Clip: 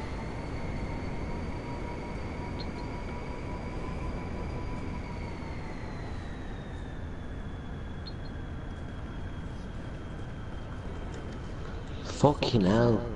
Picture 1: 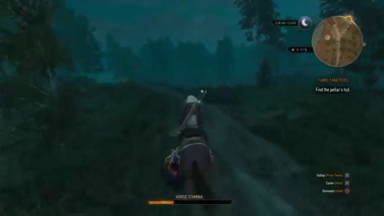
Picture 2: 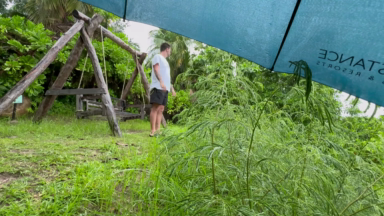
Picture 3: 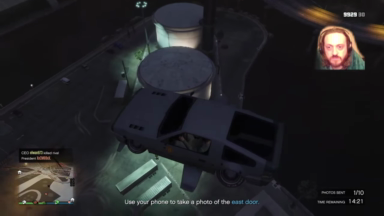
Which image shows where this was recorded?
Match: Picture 3